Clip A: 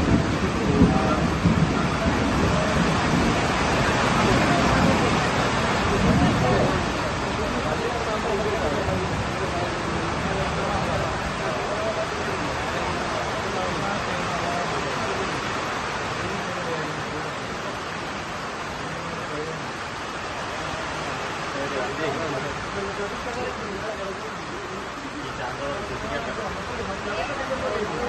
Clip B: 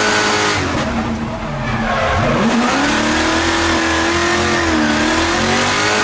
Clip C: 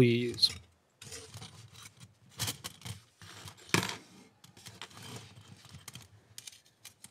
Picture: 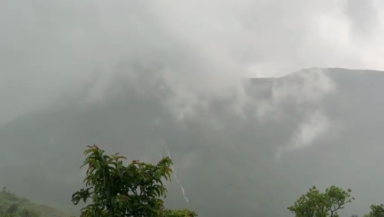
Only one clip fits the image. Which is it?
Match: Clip A